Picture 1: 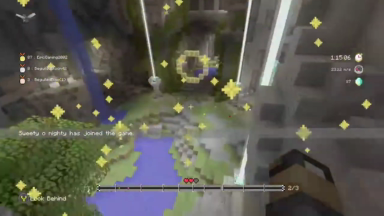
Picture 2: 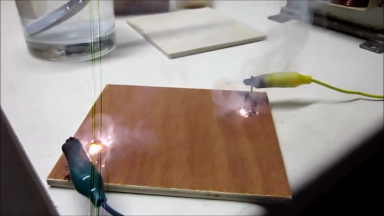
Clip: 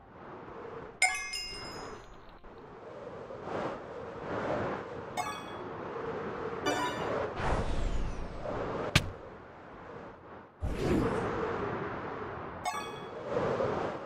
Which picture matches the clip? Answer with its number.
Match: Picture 1